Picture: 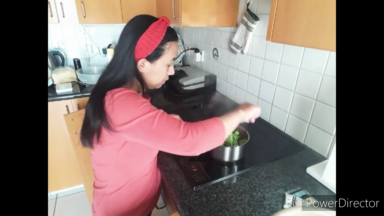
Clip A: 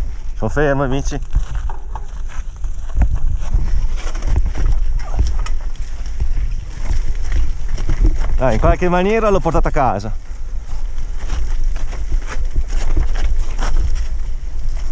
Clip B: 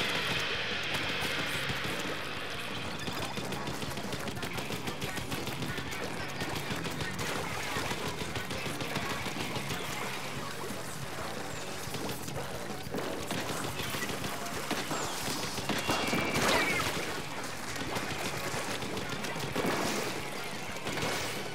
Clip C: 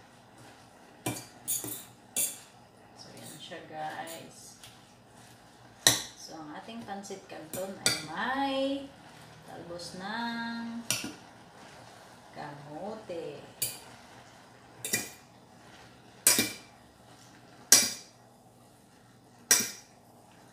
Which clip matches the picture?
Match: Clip C